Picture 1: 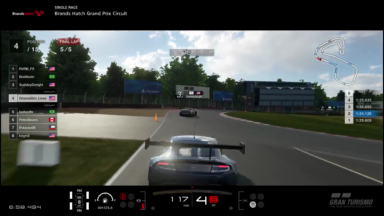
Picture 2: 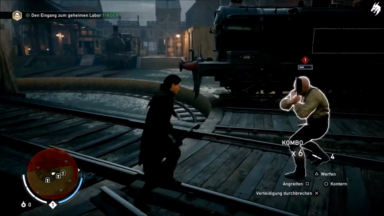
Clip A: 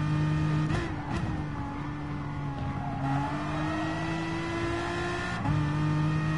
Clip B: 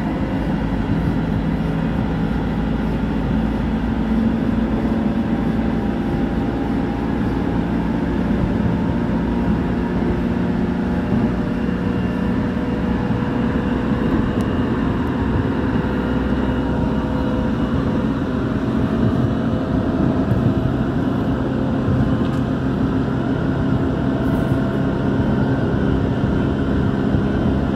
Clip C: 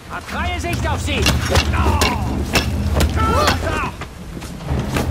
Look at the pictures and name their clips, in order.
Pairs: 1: A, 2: C